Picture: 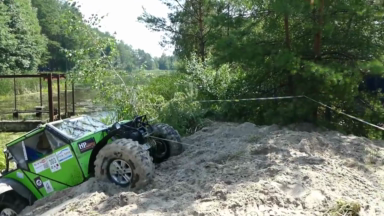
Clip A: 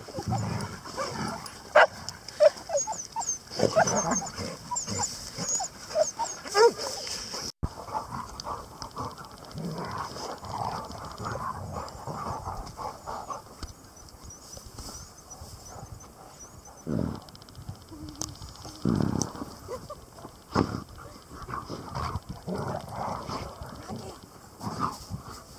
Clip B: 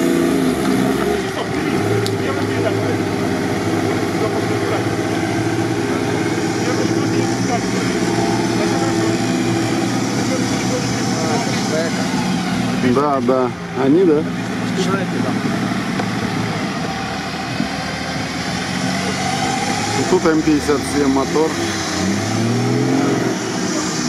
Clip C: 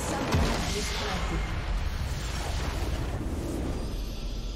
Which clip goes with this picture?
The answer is B